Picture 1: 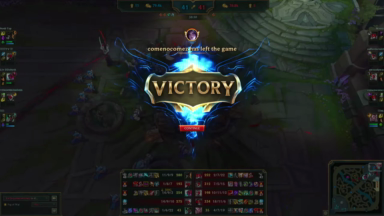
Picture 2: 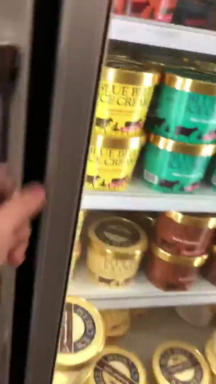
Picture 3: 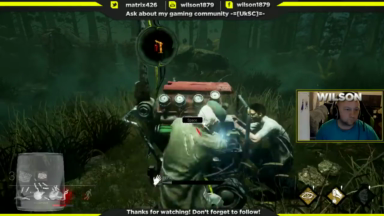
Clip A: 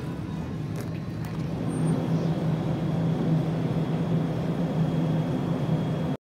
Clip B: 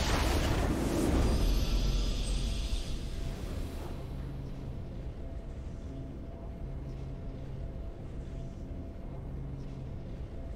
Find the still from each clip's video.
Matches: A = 2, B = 1